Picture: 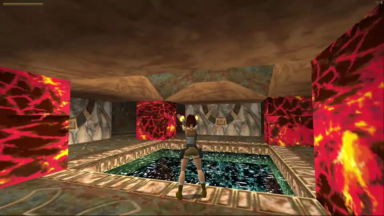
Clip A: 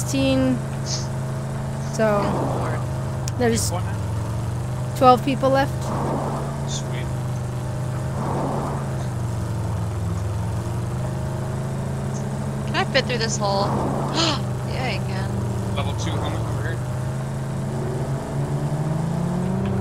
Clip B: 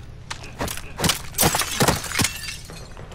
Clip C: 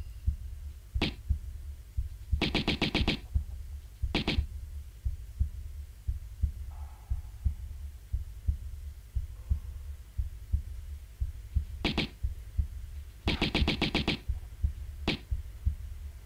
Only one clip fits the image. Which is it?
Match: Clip C